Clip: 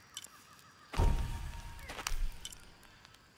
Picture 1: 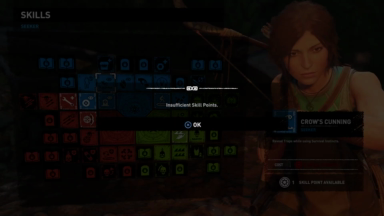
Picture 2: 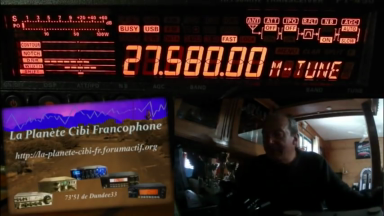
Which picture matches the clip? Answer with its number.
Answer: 1